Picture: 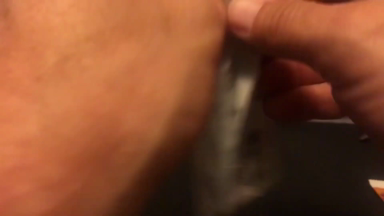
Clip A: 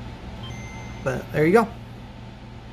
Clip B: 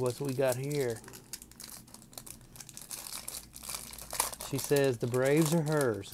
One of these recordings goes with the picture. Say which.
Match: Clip B